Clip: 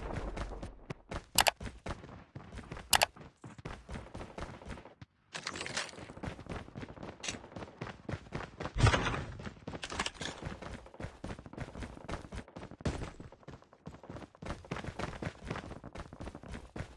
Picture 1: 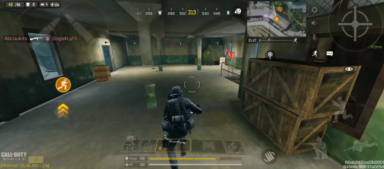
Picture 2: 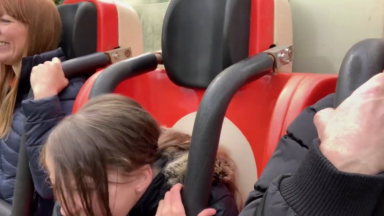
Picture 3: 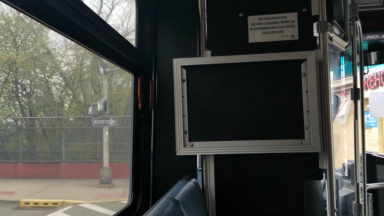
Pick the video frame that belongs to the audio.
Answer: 1